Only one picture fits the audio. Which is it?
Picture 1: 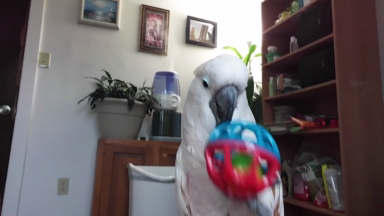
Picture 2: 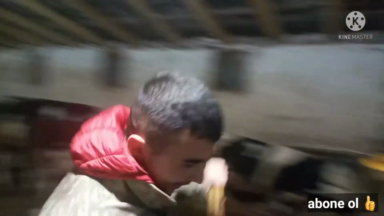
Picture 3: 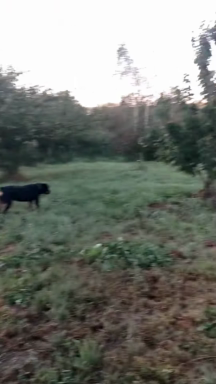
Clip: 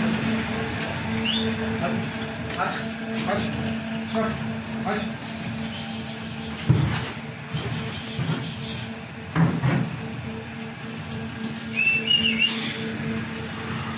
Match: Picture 2